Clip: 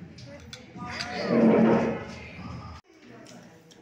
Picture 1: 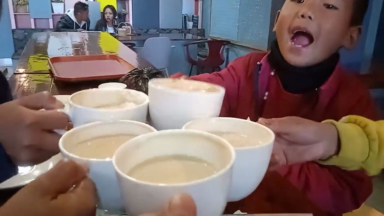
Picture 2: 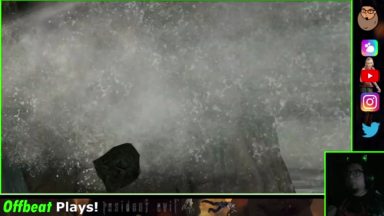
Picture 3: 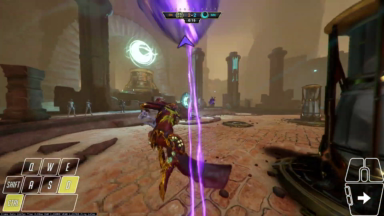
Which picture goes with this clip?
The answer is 1